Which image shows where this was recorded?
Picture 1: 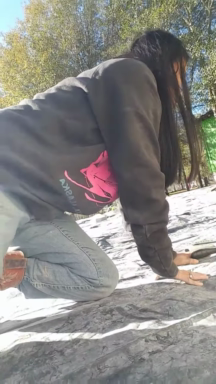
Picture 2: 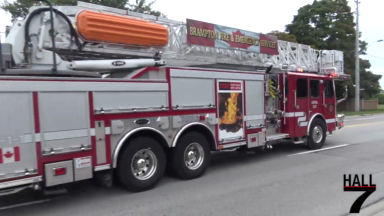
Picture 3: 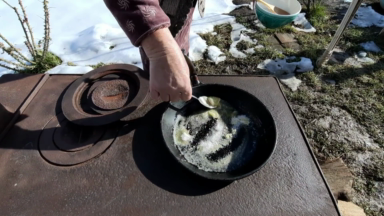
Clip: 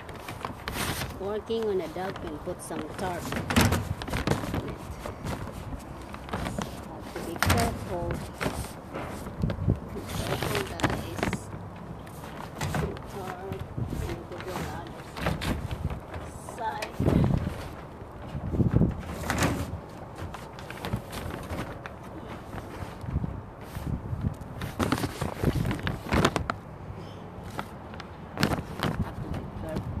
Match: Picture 1